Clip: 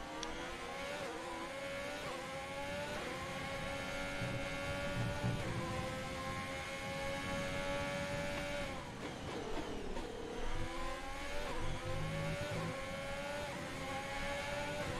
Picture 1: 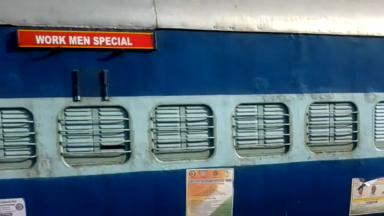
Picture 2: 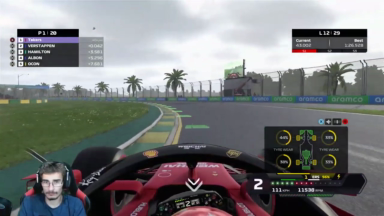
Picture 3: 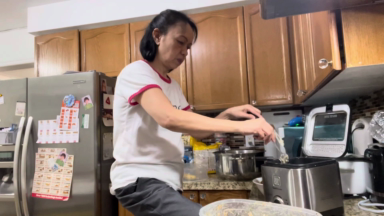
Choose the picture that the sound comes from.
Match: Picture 2